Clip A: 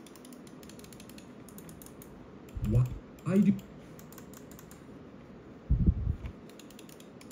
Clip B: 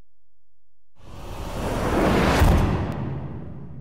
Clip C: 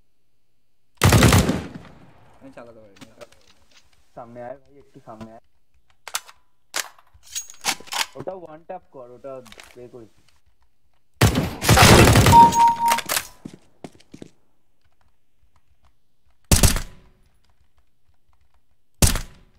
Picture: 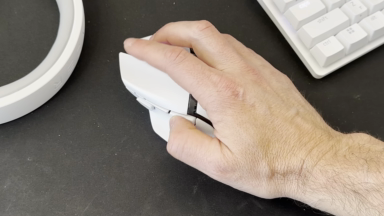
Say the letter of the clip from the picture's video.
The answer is A